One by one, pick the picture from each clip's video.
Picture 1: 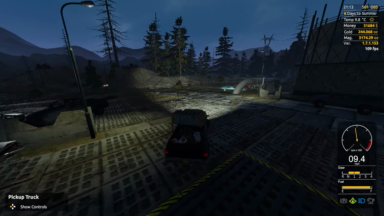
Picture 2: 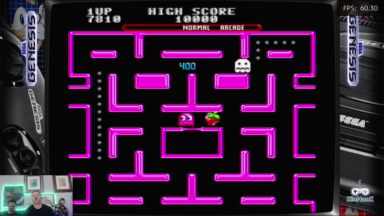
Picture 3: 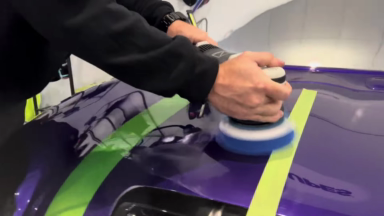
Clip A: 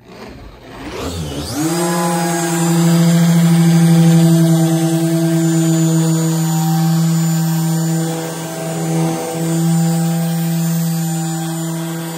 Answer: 3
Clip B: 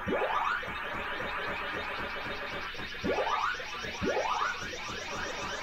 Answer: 2